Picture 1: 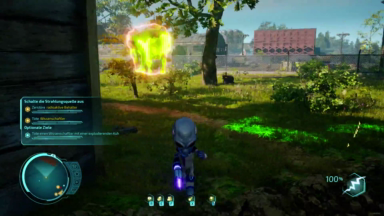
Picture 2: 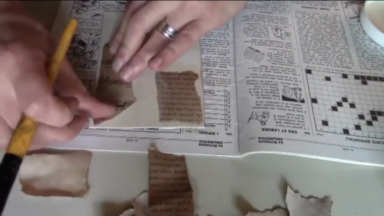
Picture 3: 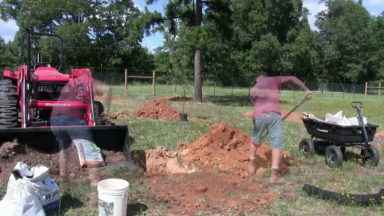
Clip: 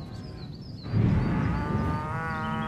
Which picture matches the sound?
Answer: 1